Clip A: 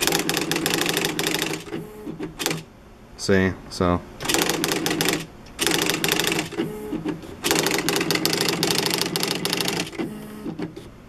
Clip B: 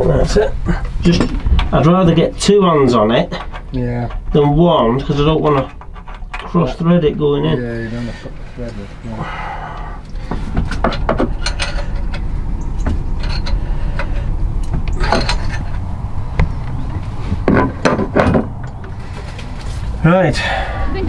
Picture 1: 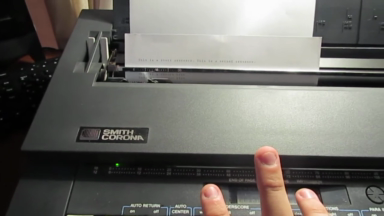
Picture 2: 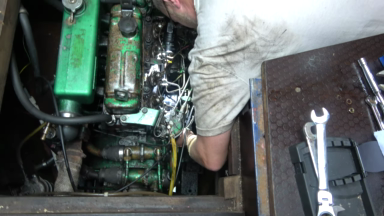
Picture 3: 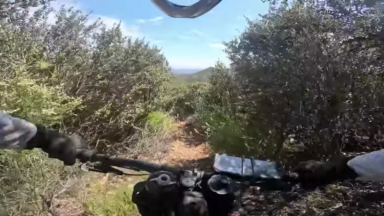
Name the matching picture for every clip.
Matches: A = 1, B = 2